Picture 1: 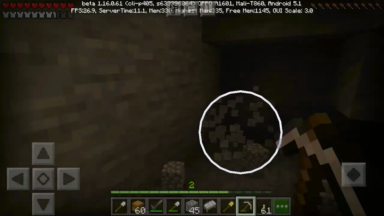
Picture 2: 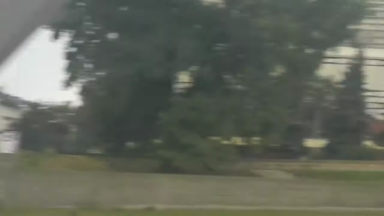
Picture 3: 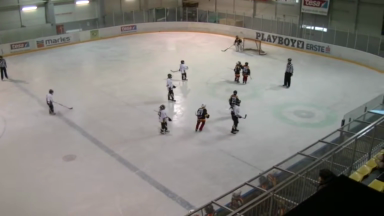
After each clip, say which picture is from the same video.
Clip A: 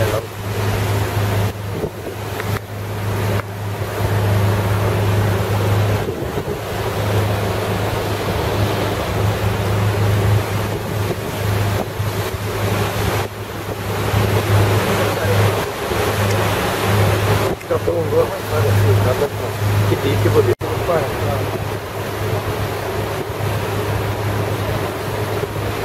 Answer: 2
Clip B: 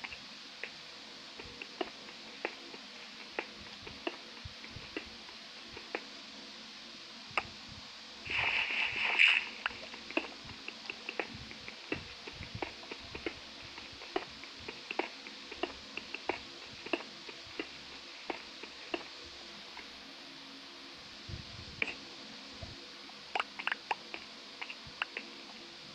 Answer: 1